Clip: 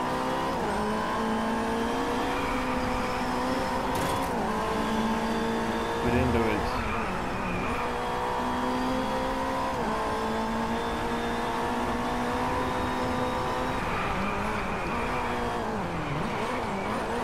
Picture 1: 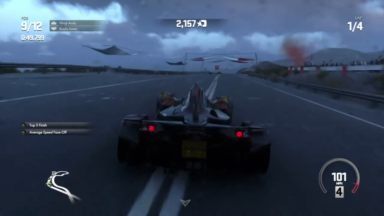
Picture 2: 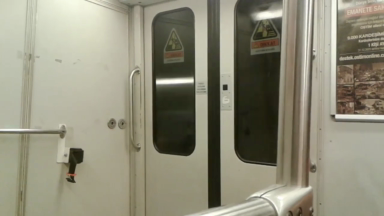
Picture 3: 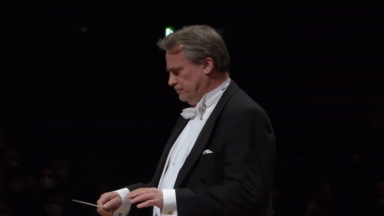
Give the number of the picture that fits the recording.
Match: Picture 1